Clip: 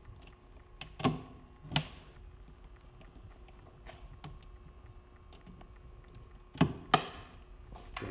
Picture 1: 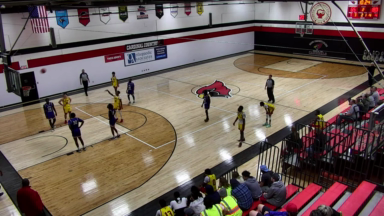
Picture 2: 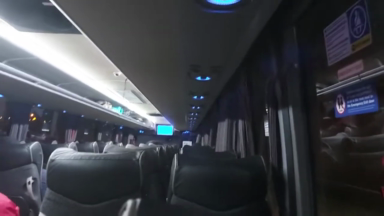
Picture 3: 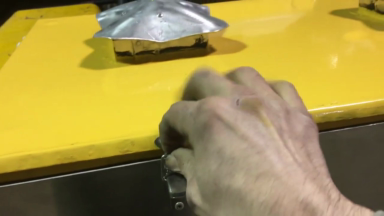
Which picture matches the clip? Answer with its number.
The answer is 3